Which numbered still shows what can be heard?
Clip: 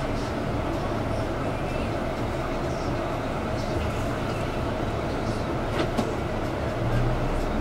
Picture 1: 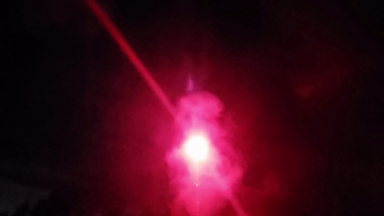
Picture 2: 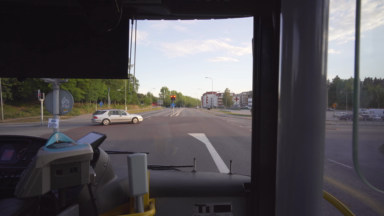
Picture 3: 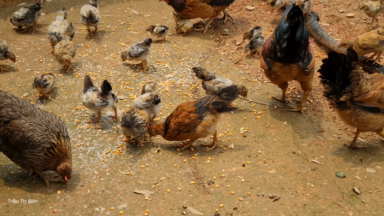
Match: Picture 2